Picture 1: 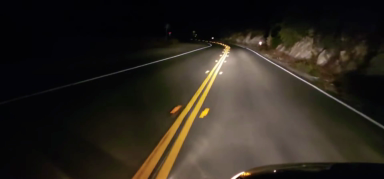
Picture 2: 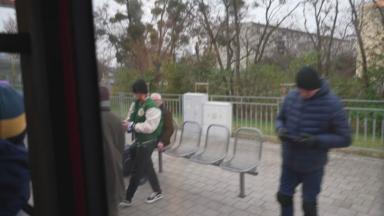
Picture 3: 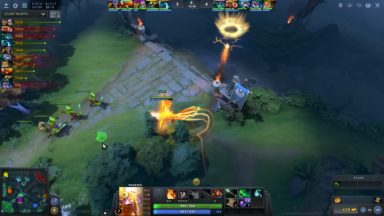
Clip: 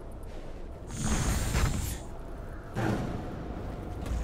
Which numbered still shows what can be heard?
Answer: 3